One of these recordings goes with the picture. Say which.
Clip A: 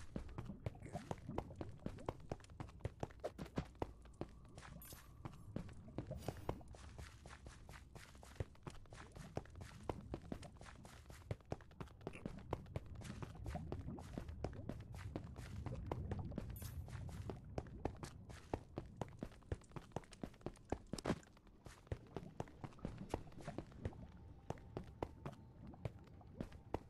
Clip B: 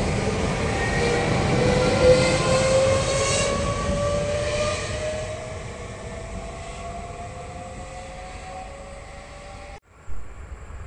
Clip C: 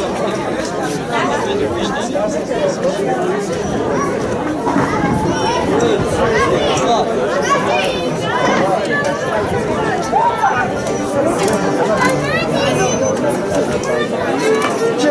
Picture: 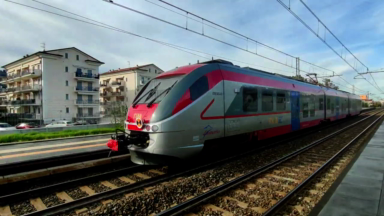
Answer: B